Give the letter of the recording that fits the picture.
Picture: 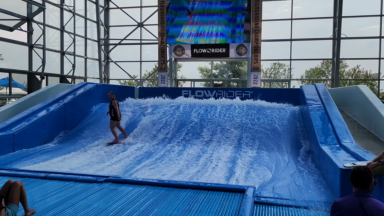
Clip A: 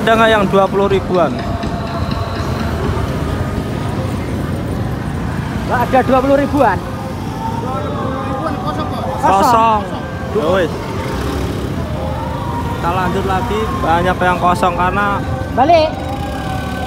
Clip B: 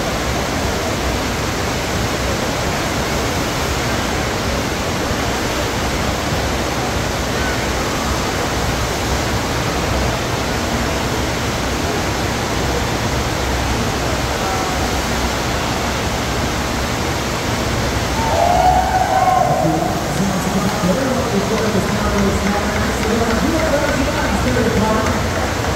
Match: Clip B